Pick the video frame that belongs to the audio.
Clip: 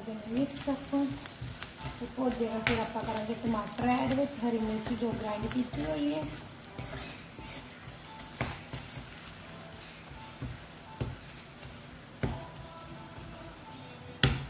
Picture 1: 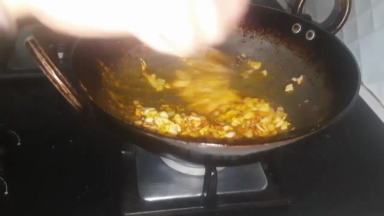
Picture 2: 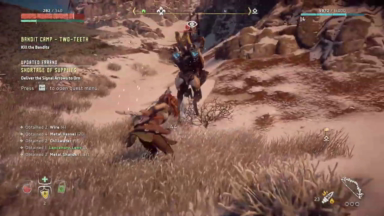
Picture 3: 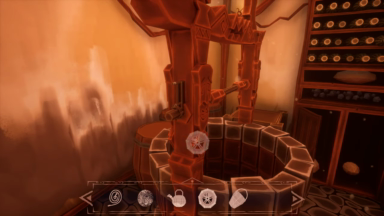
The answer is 1